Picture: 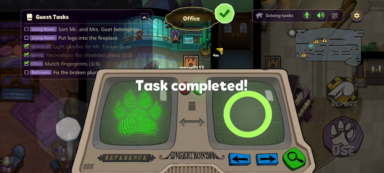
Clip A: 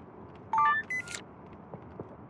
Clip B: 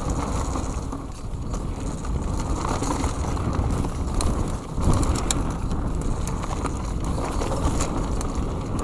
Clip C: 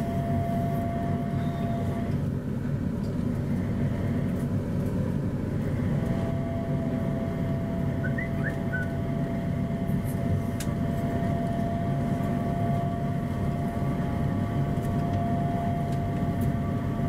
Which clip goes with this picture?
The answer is A